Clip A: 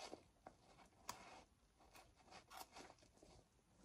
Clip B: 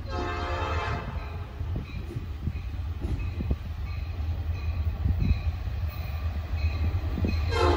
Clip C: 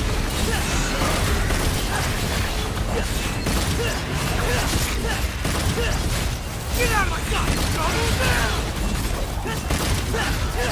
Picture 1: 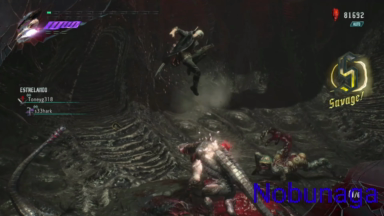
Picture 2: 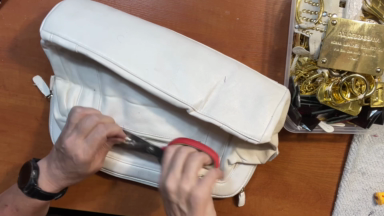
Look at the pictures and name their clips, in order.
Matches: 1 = C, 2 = A